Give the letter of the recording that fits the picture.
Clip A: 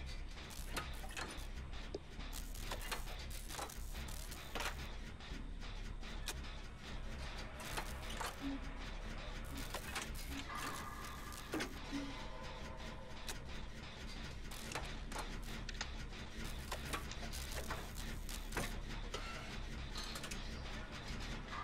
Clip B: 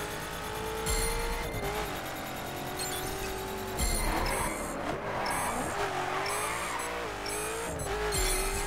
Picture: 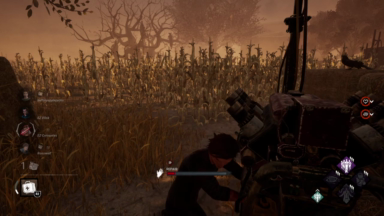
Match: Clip A